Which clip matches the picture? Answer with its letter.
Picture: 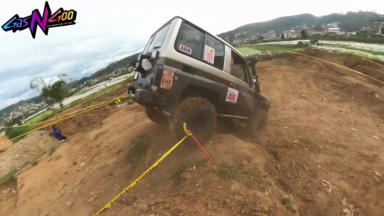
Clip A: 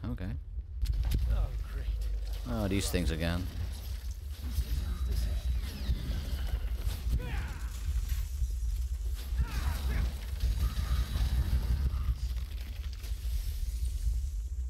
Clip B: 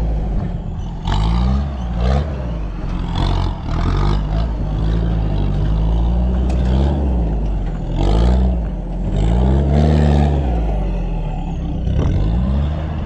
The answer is B